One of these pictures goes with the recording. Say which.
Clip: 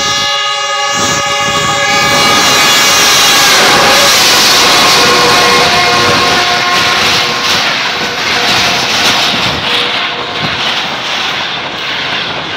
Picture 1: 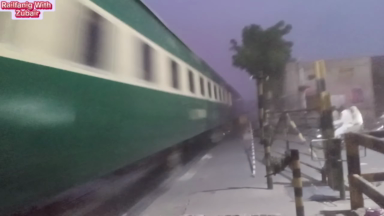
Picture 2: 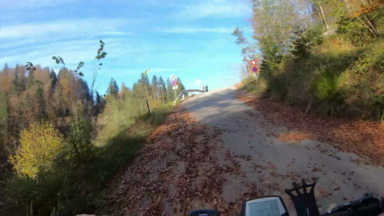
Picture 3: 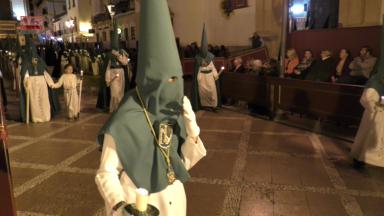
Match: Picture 1